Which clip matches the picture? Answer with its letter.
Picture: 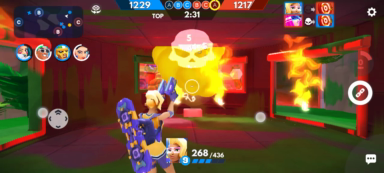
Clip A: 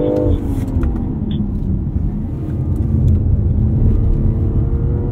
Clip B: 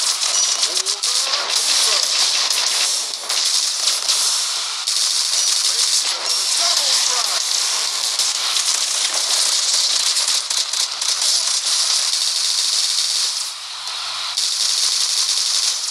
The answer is B